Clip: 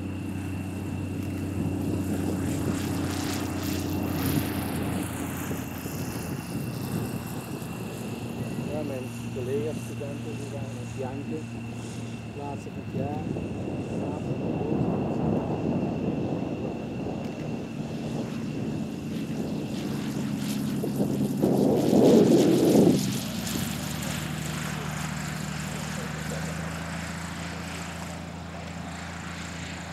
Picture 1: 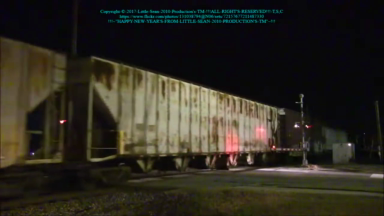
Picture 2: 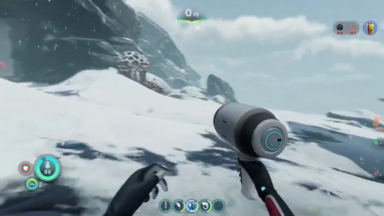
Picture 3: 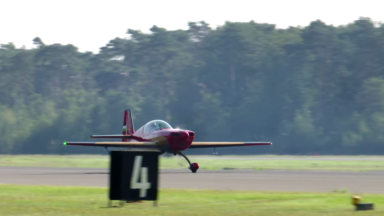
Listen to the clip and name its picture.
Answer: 3